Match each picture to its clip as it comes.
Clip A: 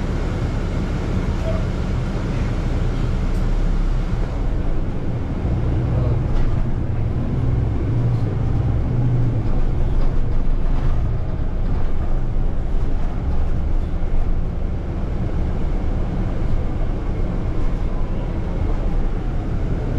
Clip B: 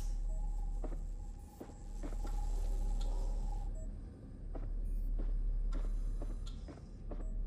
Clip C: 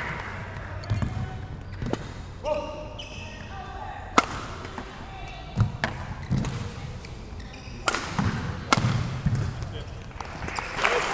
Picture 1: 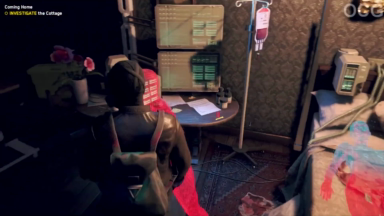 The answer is B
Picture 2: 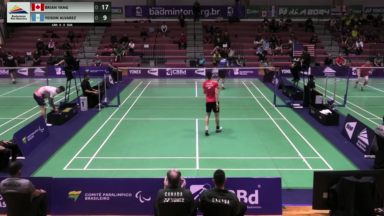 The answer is C